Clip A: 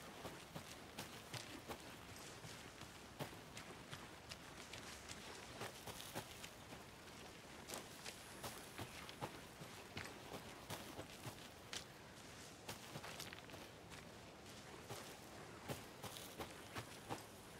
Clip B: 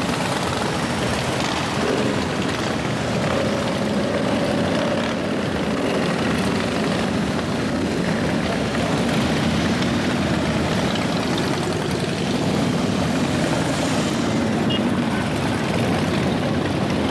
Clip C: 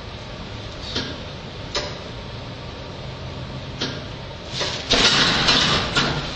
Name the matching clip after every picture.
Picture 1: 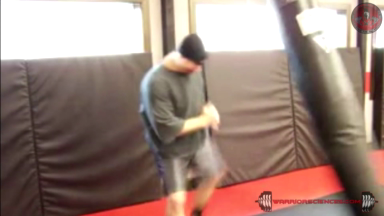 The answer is C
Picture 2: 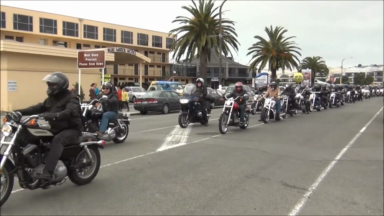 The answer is B